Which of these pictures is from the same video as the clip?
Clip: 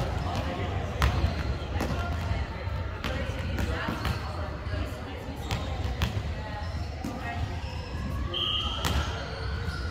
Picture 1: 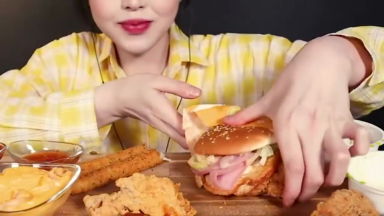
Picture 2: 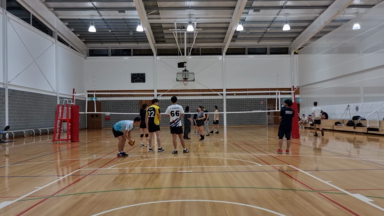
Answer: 2